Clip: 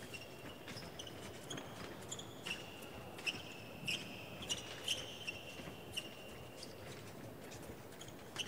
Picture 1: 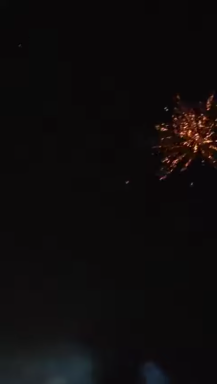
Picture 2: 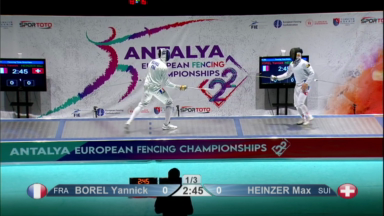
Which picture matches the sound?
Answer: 2